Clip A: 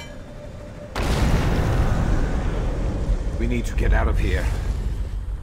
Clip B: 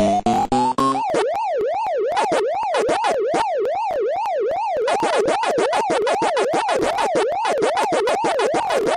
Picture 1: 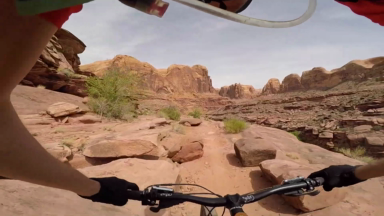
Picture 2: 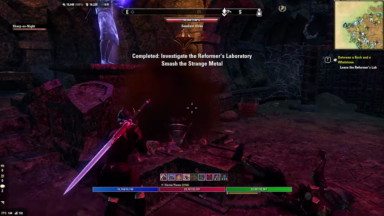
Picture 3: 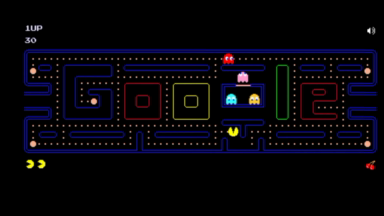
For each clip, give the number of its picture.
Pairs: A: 2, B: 3